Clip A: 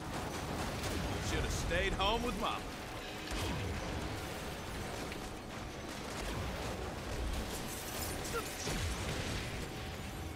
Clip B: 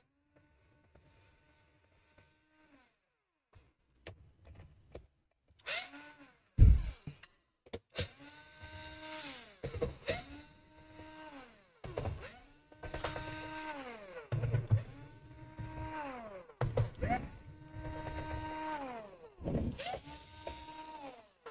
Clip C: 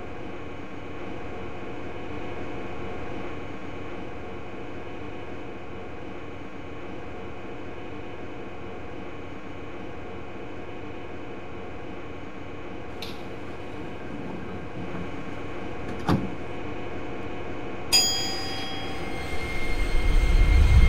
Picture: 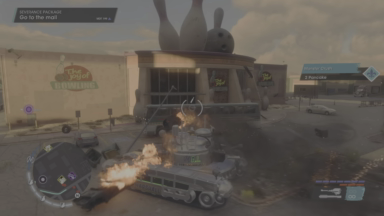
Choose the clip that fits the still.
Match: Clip A